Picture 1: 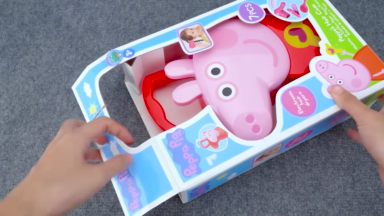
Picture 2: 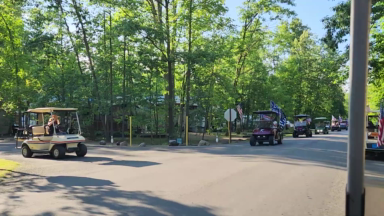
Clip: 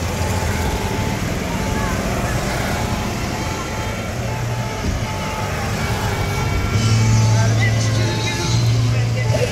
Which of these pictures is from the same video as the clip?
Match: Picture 2